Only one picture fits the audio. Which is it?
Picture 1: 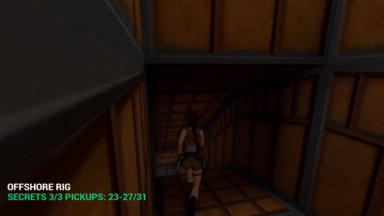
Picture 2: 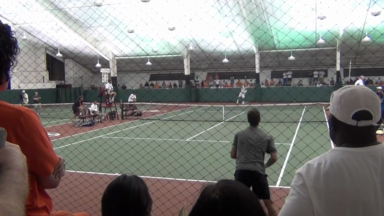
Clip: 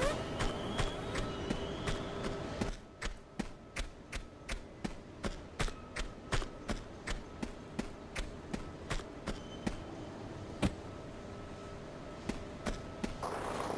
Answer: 1